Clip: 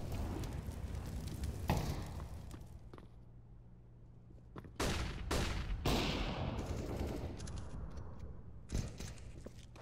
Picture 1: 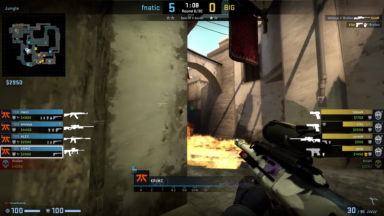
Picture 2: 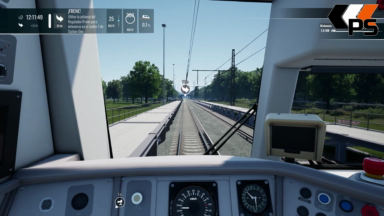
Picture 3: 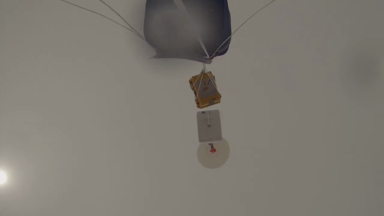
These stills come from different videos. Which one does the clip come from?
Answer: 1